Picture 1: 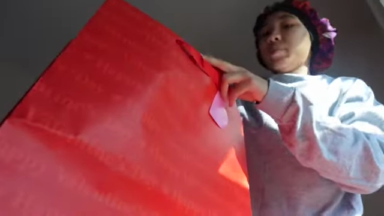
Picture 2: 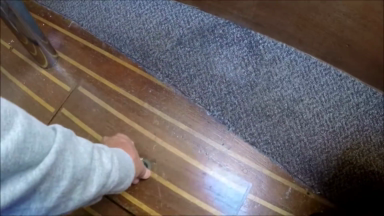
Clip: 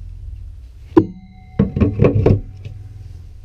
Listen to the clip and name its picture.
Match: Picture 2